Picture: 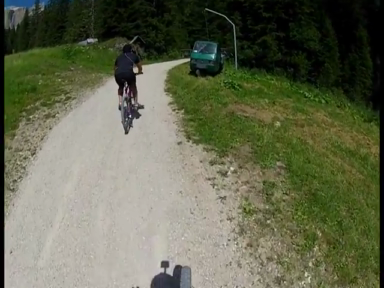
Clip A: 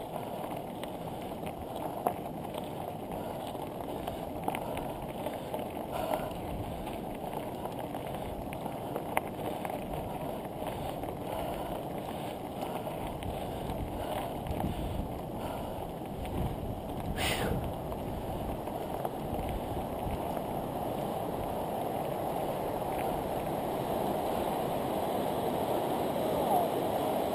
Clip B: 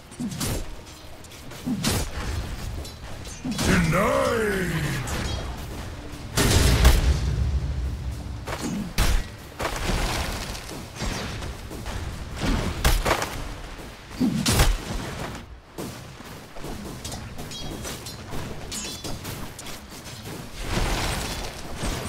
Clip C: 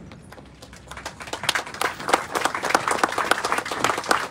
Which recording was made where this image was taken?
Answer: A